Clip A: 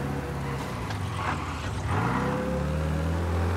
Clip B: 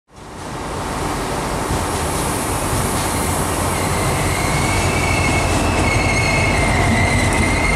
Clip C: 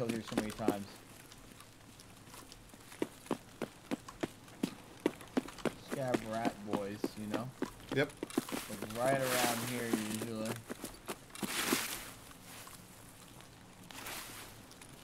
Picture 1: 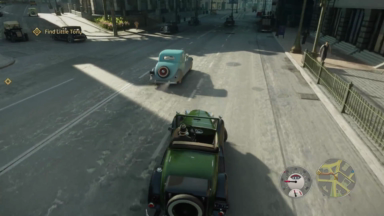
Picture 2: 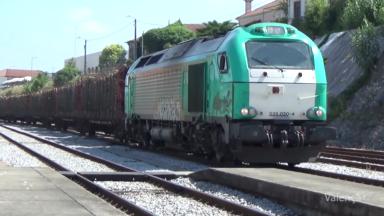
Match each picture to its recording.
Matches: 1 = A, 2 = B